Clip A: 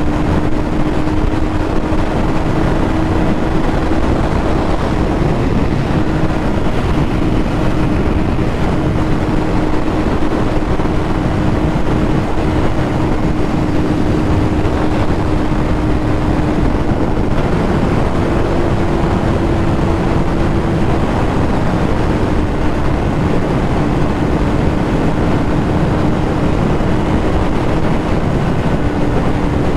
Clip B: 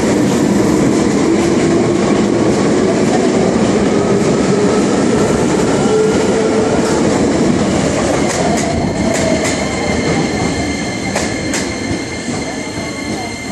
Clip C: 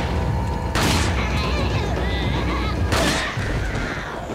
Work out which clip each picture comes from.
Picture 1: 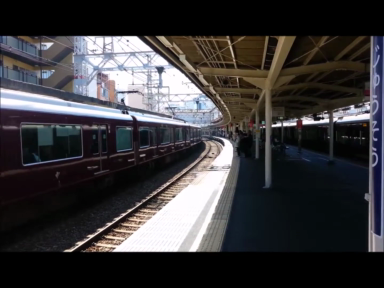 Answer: B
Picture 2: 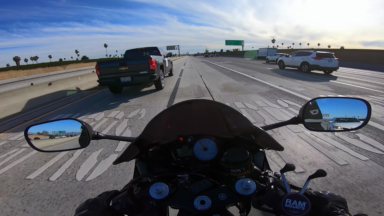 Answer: A